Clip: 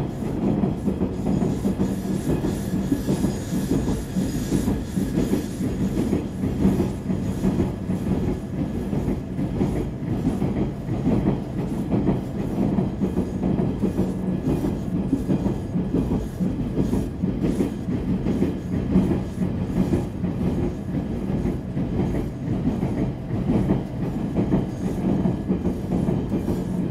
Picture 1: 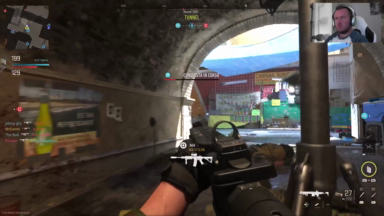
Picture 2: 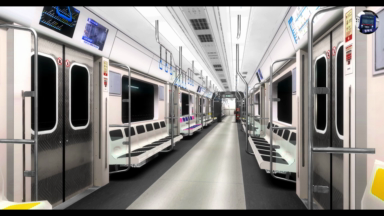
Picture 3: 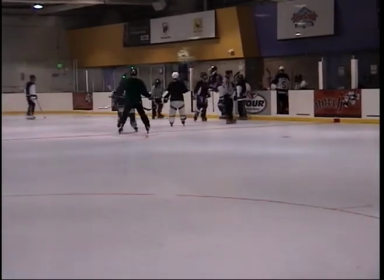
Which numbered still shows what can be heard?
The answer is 2